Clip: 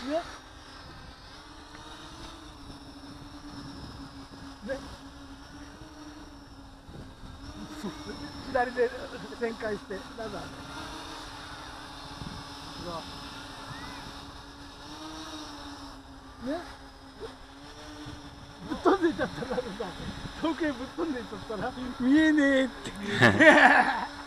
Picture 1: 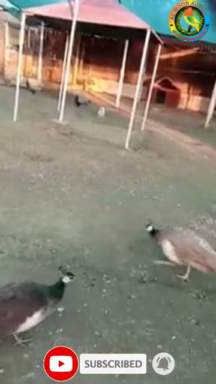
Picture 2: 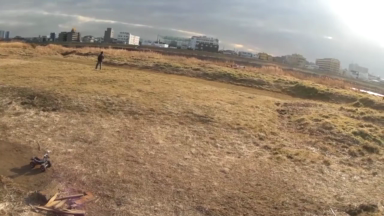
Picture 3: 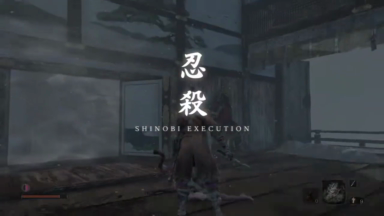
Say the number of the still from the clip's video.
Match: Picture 2